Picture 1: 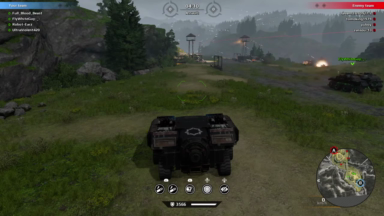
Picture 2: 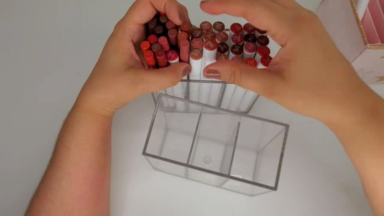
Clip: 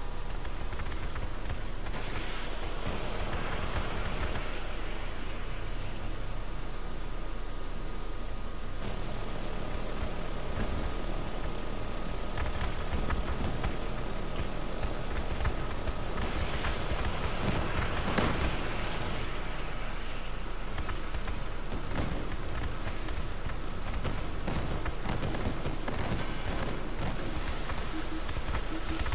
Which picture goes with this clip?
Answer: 1